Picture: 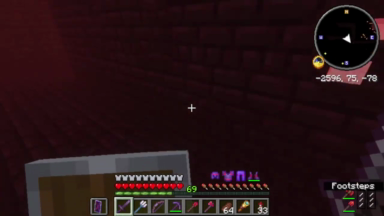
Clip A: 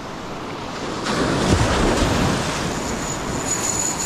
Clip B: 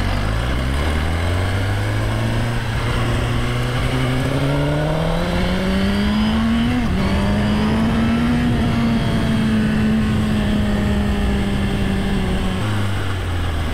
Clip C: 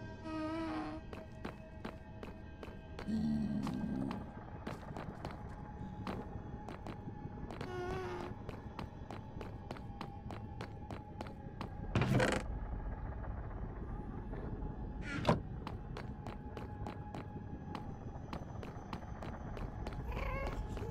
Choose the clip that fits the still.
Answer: C